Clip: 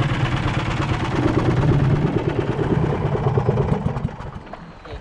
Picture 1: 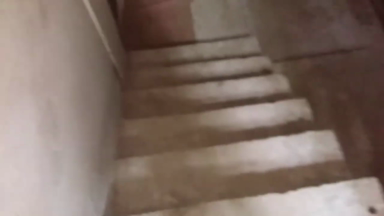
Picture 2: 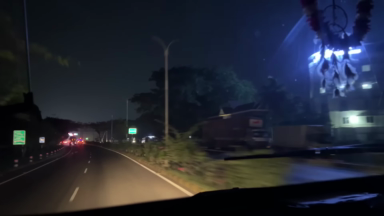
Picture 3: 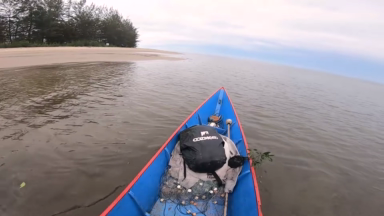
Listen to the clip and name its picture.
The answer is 3